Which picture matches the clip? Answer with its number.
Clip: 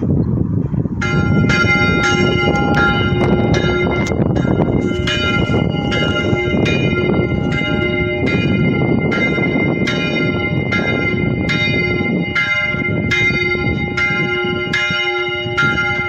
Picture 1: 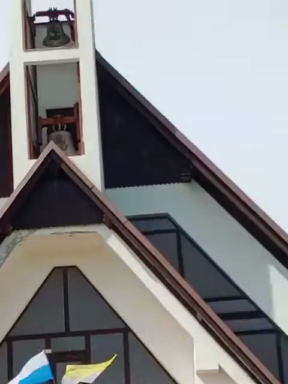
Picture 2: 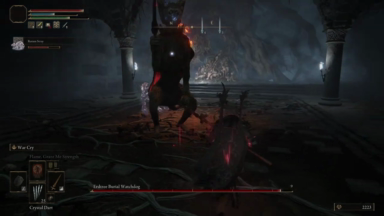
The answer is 1